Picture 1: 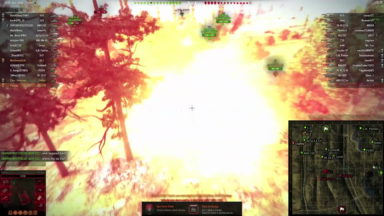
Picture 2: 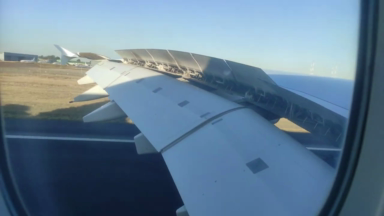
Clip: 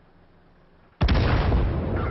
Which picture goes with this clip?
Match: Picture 1